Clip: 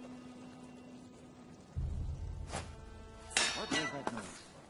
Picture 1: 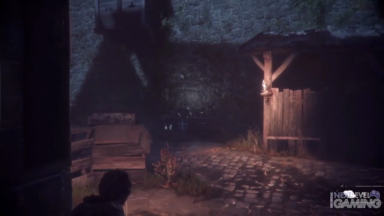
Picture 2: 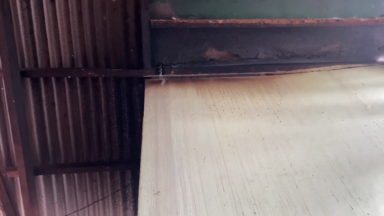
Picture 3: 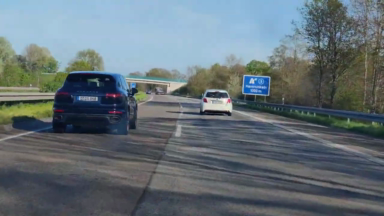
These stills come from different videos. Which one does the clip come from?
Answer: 1